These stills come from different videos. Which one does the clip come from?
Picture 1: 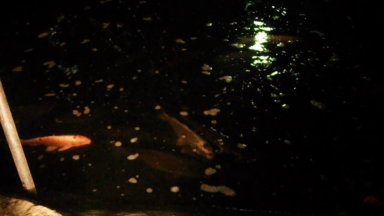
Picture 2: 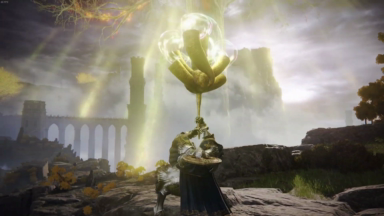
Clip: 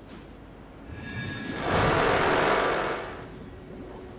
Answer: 2